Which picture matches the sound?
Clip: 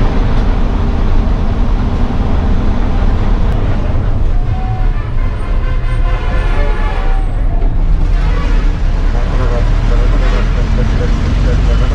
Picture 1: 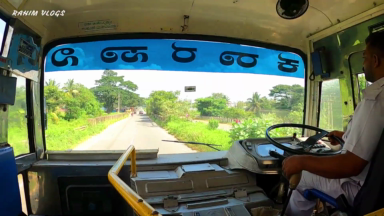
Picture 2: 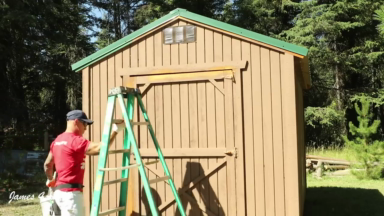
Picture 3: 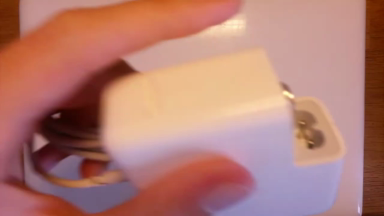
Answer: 1